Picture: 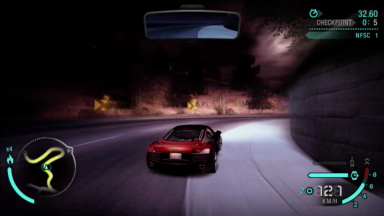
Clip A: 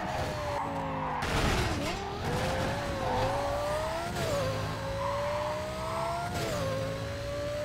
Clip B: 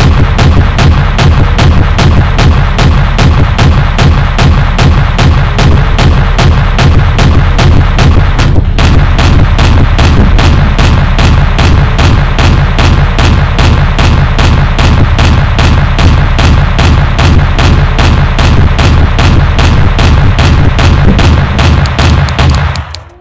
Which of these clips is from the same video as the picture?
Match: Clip A